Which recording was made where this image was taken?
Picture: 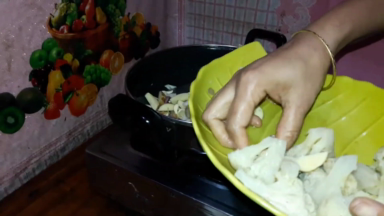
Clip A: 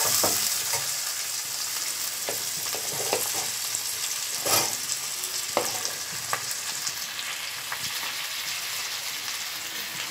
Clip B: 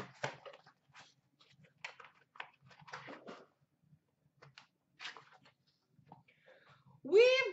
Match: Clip A